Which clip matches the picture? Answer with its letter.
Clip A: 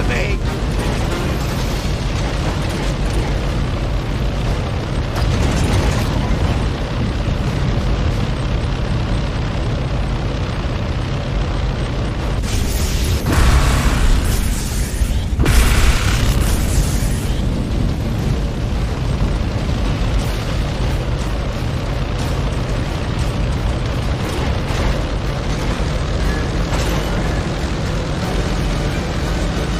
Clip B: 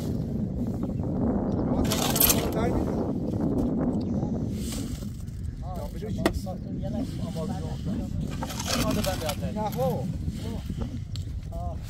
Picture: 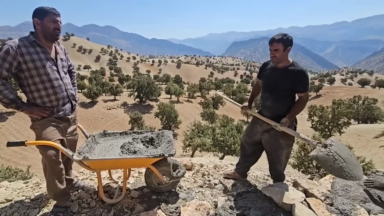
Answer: B